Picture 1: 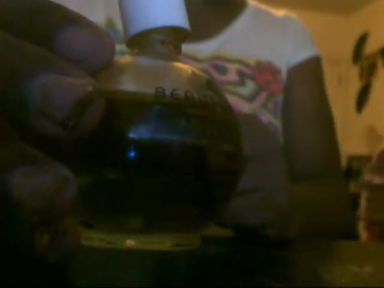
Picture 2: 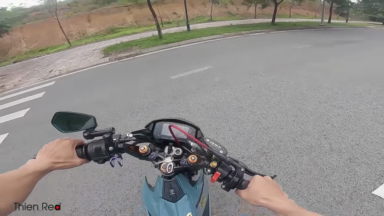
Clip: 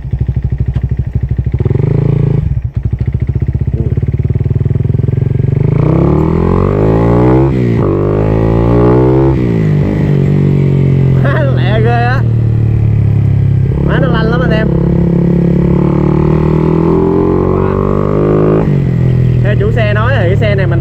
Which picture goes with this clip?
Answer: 2